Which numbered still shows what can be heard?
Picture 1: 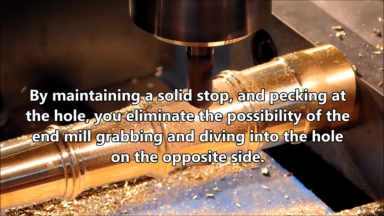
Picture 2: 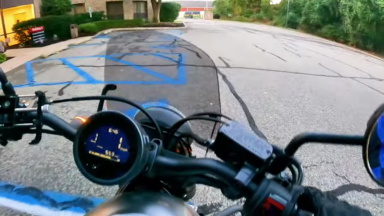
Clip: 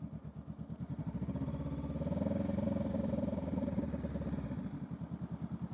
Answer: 2